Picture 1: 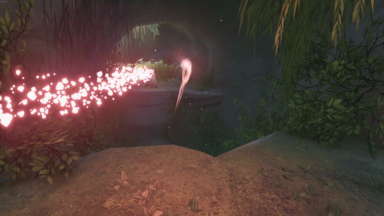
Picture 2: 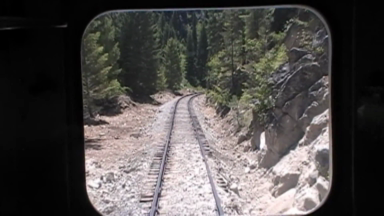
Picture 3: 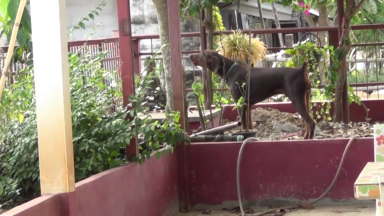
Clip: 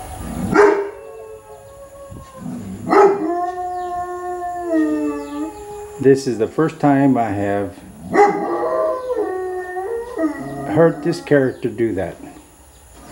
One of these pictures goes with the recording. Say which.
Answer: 3